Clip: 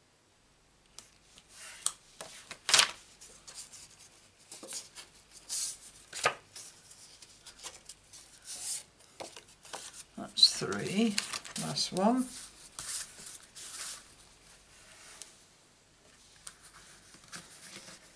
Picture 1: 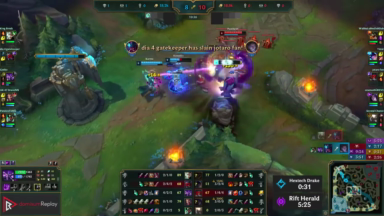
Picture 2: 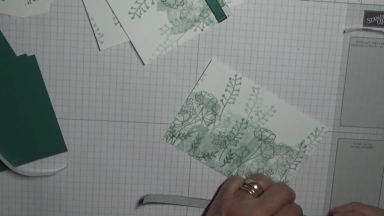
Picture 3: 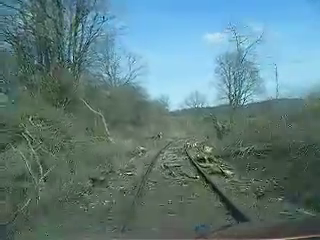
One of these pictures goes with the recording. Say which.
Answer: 2